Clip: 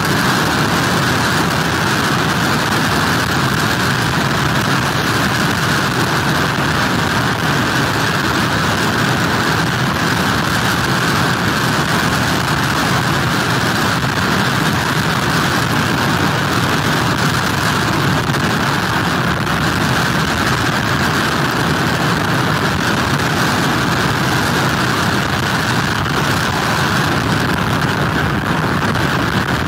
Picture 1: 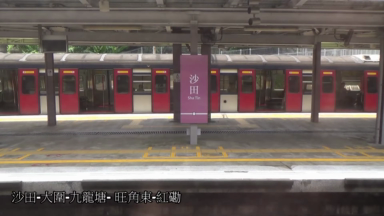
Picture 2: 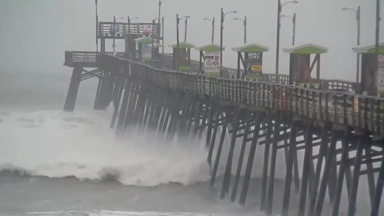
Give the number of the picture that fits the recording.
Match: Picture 2